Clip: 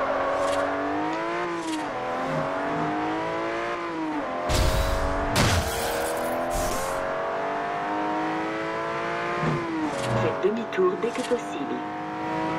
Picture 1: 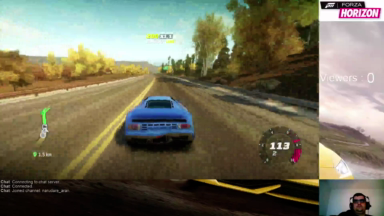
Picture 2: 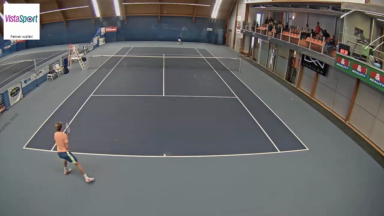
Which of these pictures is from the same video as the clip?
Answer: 1